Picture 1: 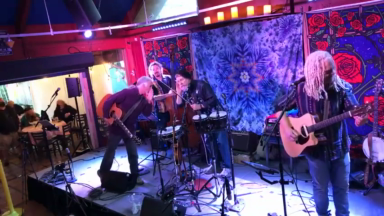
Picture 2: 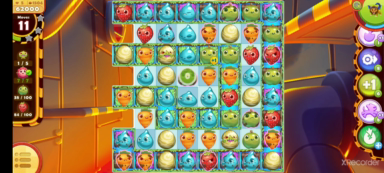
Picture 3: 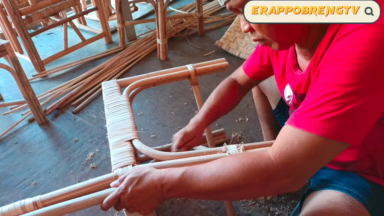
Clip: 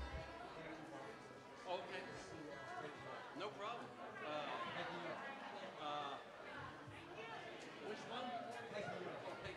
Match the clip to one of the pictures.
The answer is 1